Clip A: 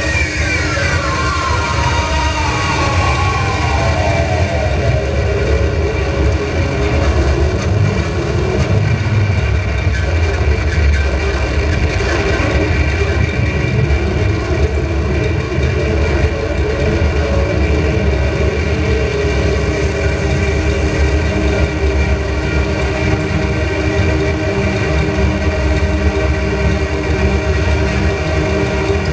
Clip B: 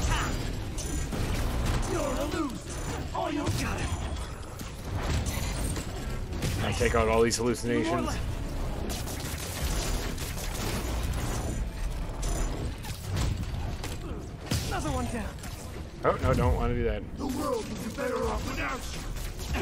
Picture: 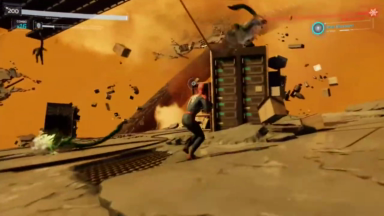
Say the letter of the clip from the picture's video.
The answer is B